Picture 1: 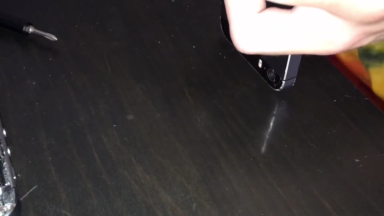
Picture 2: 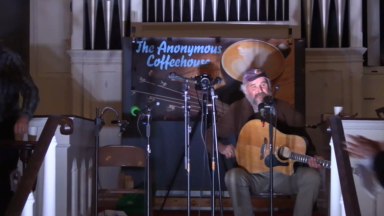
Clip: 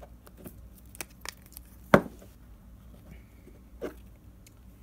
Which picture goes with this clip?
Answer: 1